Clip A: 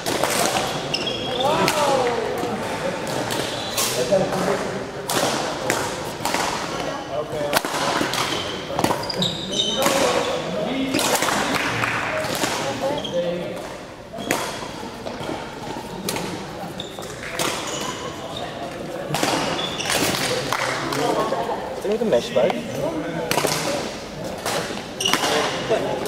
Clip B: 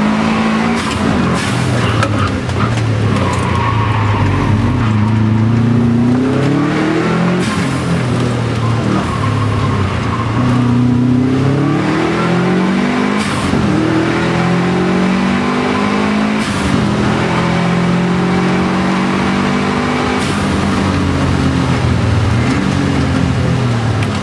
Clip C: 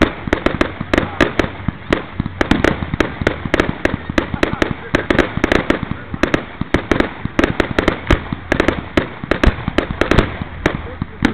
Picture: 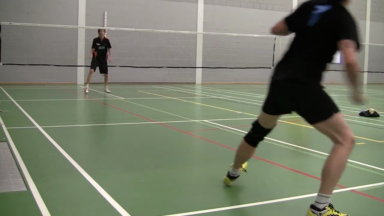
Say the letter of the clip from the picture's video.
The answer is A